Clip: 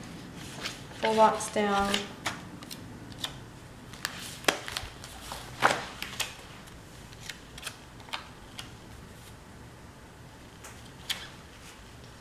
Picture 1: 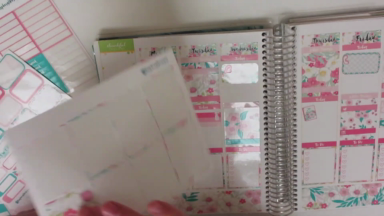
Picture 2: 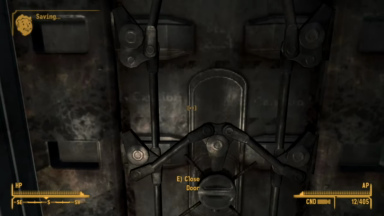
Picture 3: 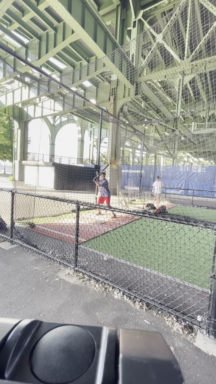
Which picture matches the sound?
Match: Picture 1